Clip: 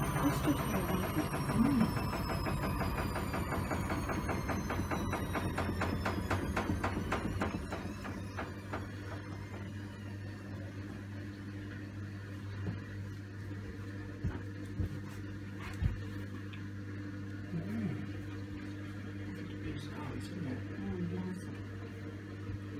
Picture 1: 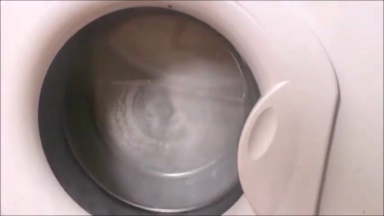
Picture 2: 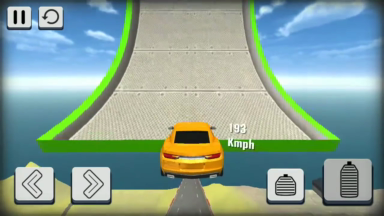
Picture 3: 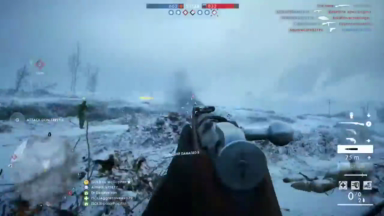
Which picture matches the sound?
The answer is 1